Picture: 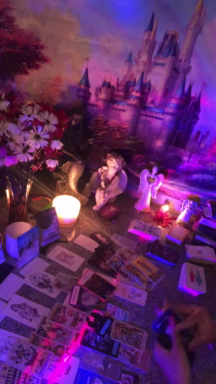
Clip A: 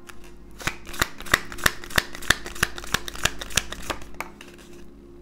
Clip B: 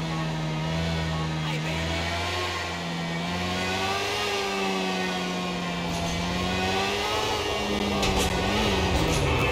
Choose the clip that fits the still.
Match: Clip A